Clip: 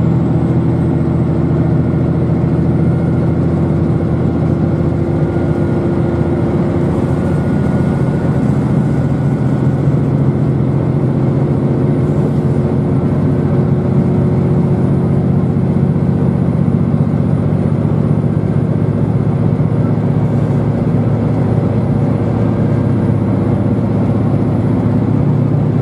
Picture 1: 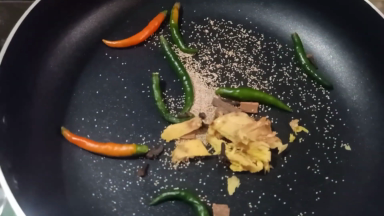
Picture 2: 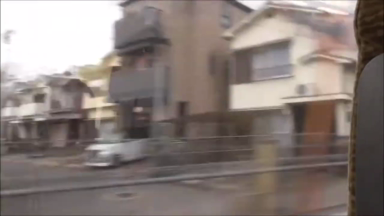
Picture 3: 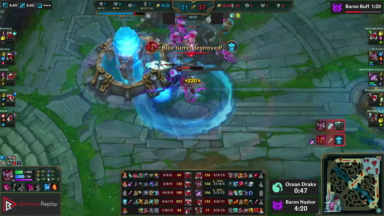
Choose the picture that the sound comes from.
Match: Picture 2